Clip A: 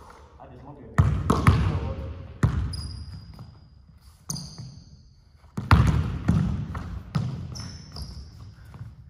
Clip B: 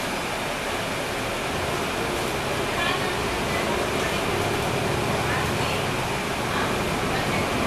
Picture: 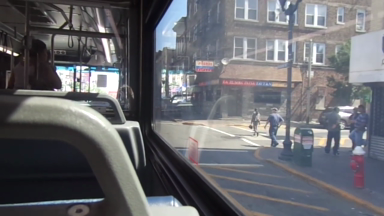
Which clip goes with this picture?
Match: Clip B